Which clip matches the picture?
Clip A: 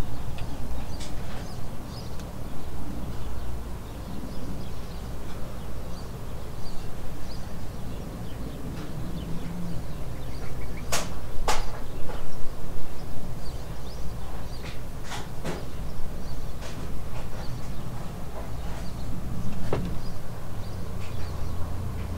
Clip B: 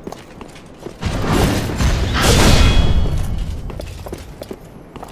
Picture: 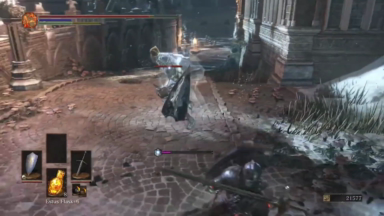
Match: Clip B